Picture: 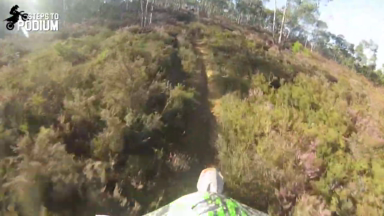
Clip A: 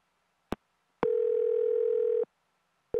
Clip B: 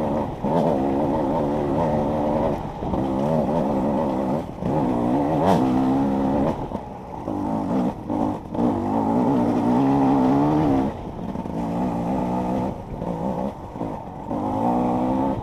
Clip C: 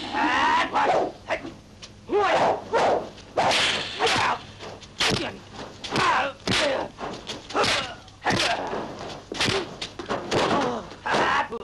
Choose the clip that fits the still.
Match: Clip B